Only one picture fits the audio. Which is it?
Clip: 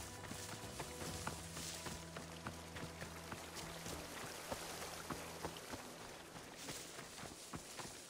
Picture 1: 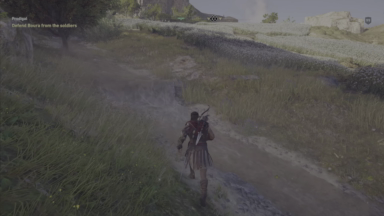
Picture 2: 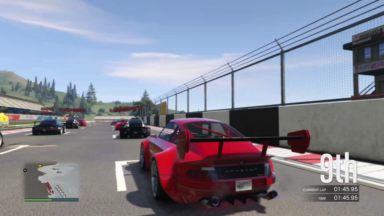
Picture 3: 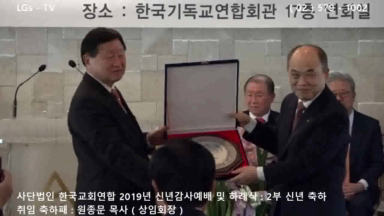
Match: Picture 1